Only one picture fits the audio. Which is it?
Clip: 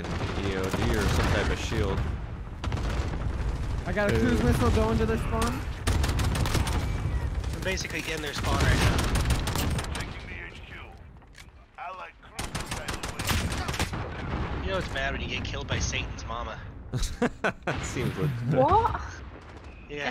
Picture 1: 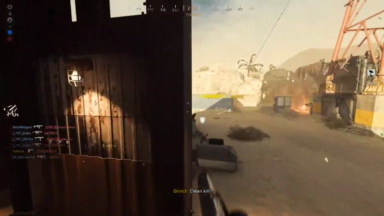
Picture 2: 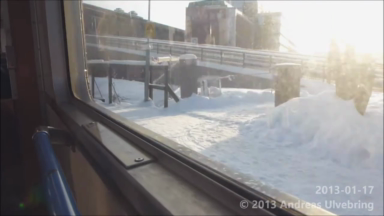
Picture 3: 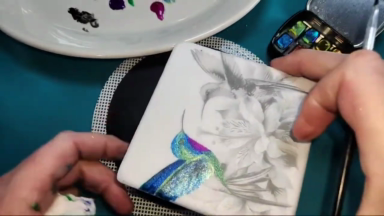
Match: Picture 1